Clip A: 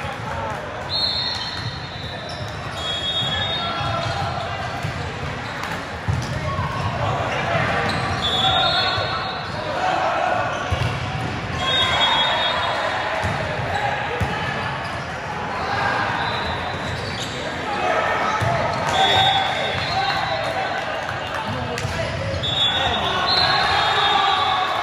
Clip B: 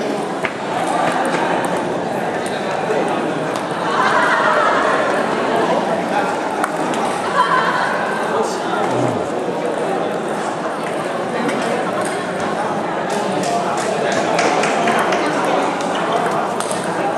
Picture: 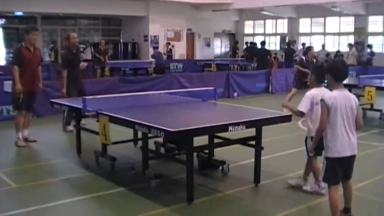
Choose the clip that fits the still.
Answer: B